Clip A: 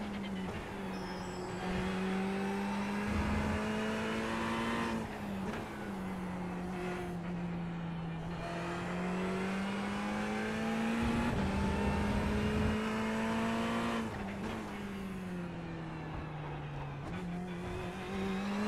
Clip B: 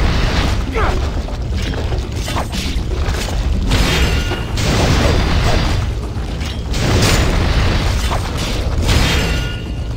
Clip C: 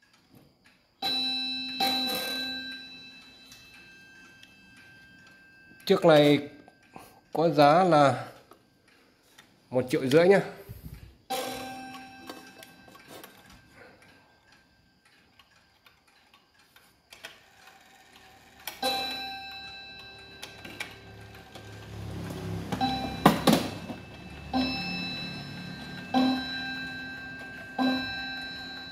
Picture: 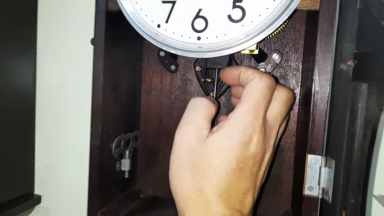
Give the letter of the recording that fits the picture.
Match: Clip C